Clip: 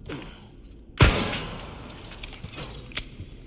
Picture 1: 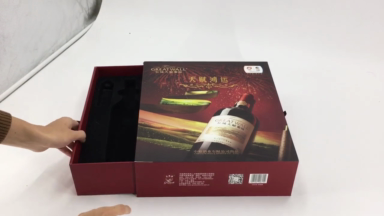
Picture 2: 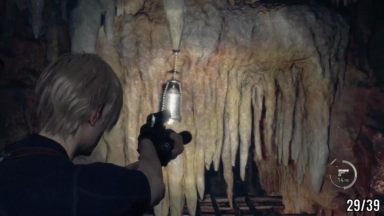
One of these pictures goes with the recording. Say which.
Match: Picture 2